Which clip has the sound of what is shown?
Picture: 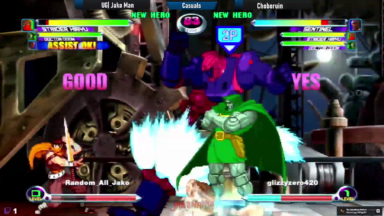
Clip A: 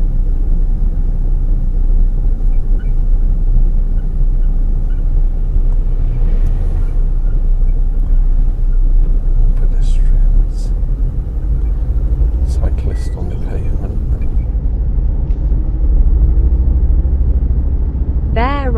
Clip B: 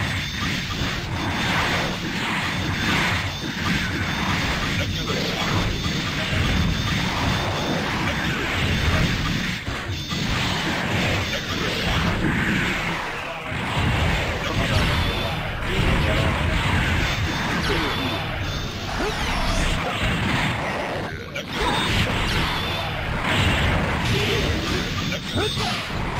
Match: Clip B